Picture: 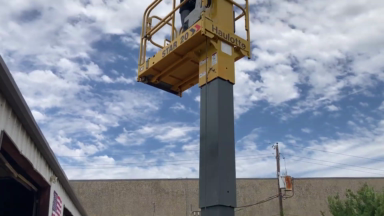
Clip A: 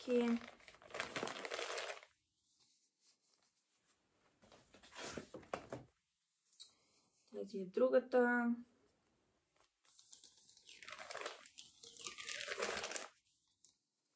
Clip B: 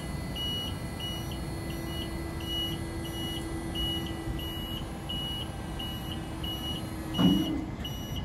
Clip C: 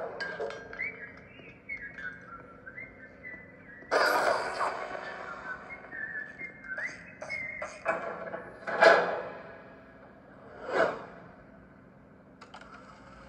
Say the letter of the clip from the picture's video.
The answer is B